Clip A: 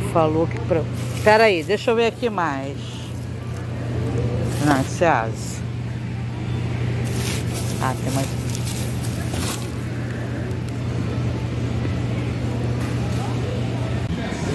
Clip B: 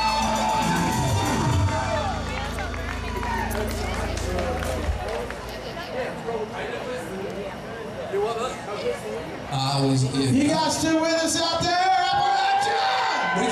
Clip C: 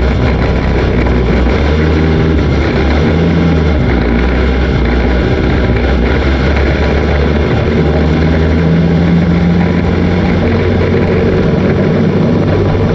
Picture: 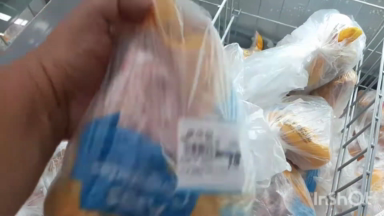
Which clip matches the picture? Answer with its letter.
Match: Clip A